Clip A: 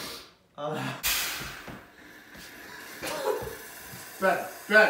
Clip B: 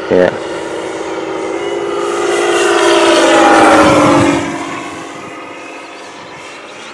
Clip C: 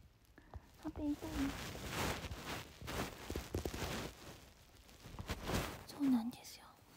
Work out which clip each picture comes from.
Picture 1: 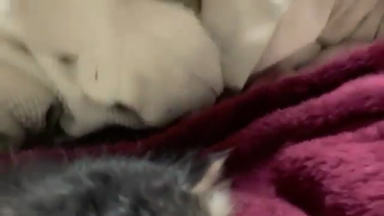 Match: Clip C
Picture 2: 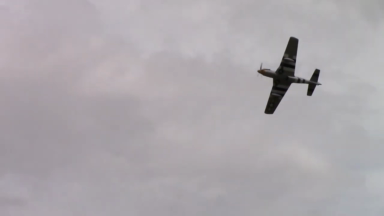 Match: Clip B